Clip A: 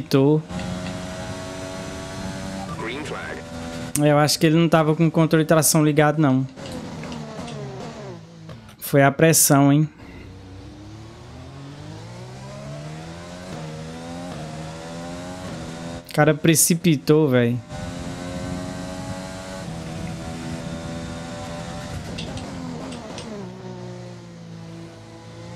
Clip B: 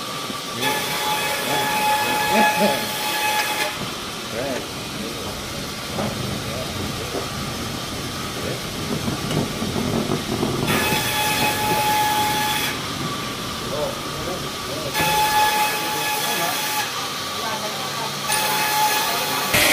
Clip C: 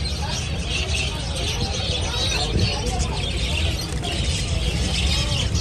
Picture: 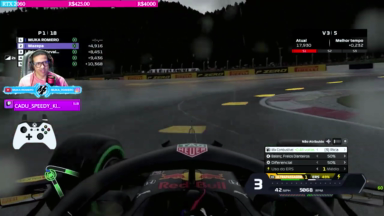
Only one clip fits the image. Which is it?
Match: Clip A